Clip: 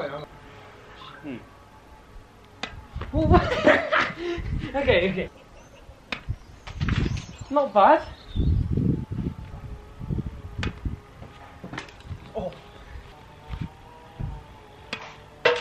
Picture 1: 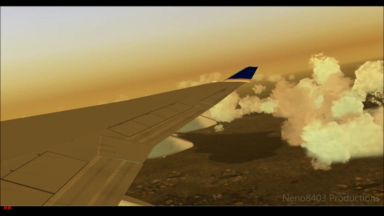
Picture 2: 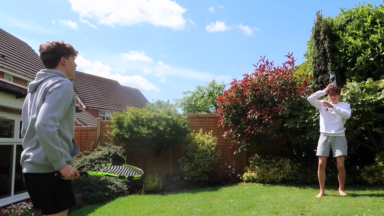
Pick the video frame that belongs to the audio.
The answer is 2